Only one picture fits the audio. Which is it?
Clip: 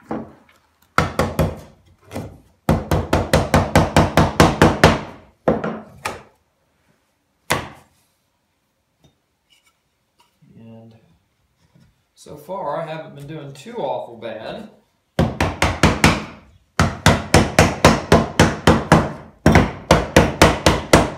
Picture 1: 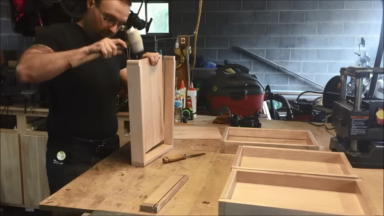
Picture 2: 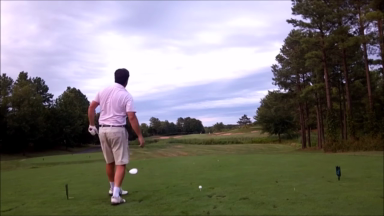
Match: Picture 1